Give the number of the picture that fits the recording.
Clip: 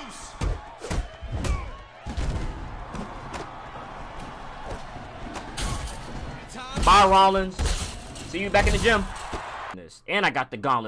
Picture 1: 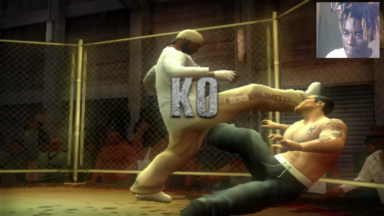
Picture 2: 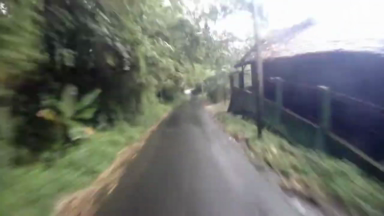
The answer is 1